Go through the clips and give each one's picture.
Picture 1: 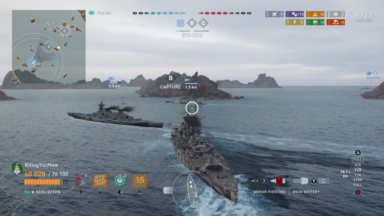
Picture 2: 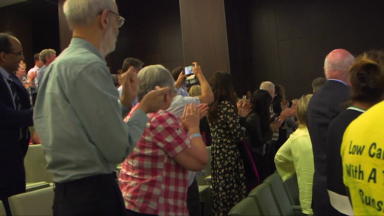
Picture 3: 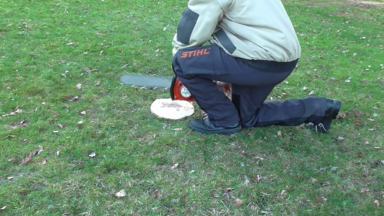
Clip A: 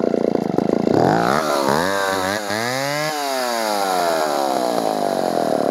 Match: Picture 3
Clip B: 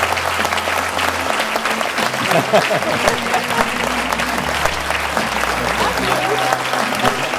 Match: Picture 2